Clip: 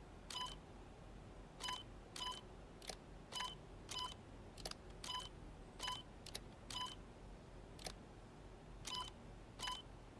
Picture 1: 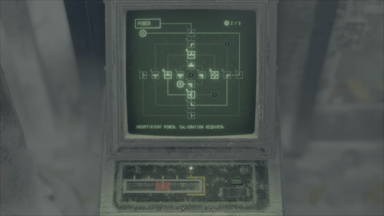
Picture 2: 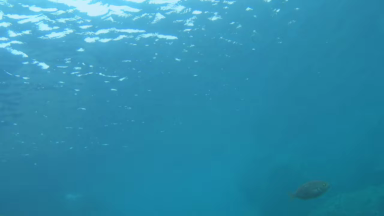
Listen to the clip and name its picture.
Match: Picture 1